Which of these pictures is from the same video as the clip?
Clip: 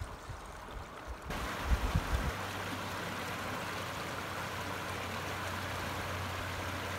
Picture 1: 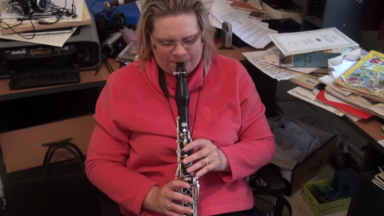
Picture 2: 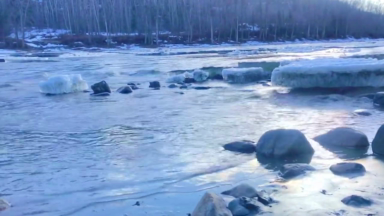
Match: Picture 2